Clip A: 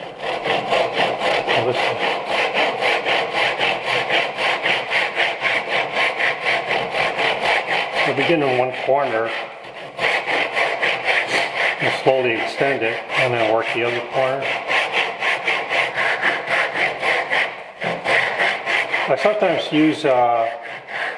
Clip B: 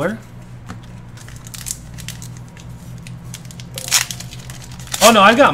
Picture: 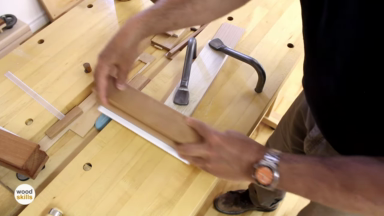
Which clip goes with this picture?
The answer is A